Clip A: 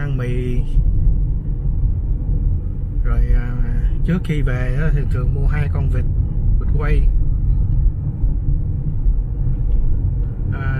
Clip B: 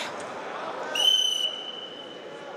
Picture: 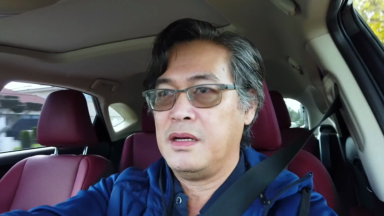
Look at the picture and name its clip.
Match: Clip A